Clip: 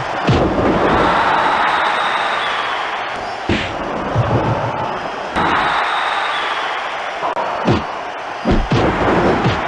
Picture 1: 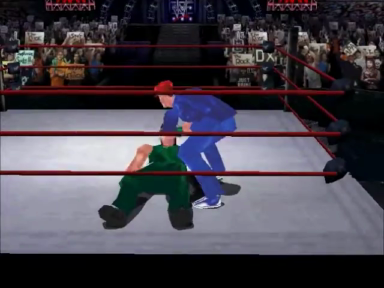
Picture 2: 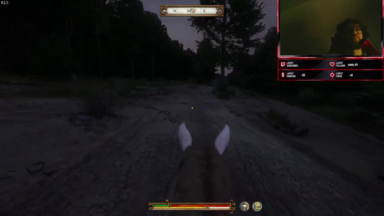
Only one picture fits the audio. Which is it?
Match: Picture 1